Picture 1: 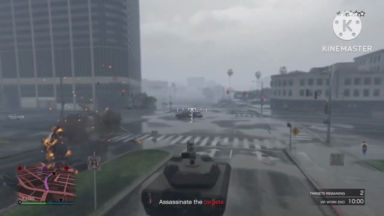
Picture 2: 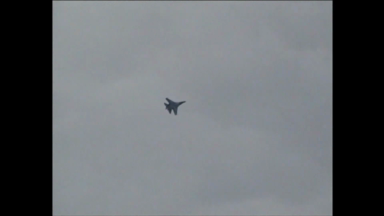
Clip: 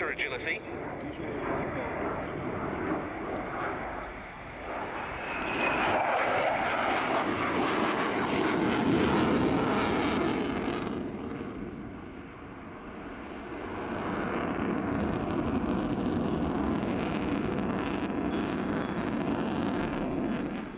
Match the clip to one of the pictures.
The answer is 2